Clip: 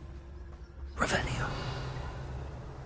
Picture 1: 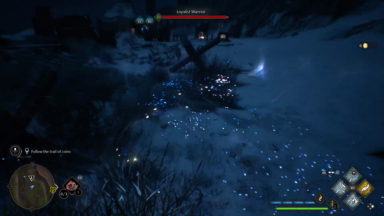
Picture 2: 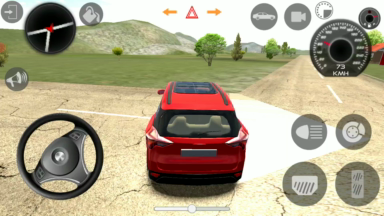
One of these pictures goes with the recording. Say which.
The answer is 1